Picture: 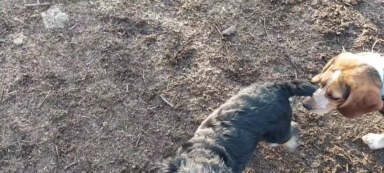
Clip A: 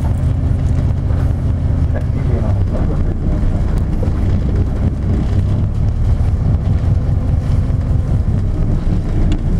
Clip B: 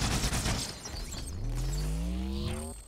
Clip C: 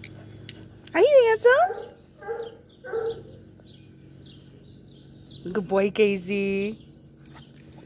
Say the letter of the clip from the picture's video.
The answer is C